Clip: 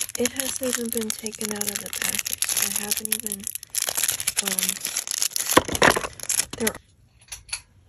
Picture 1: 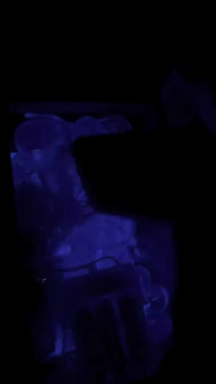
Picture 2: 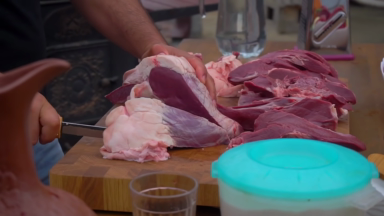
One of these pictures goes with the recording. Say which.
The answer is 1